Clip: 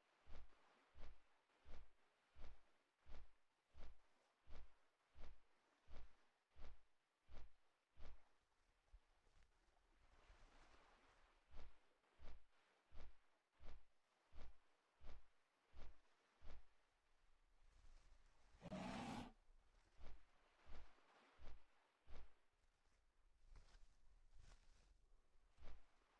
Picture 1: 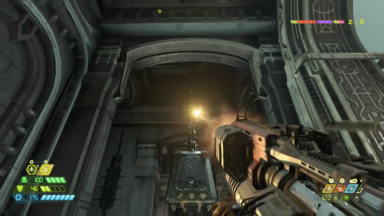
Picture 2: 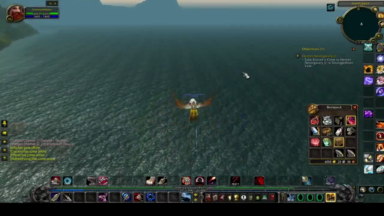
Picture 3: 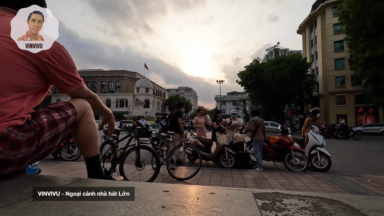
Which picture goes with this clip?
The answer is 2